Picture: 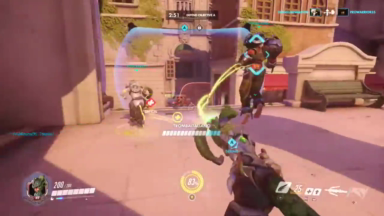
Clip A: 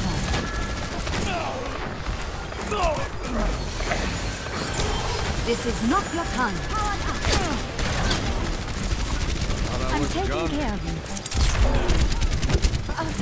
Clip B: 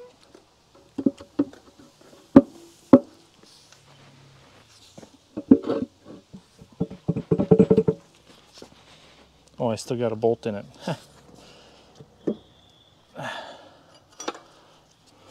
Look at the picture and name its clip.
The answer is A